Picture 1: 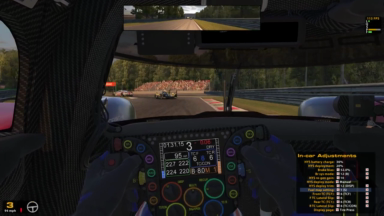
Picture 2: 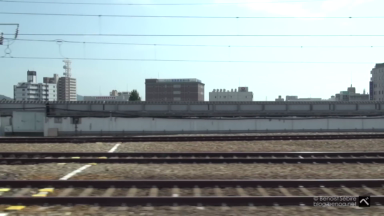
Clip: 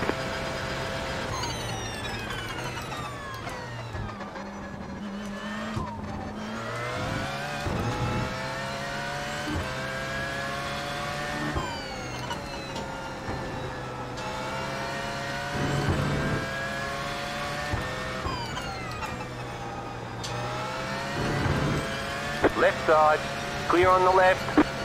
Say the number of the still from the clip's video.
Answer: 1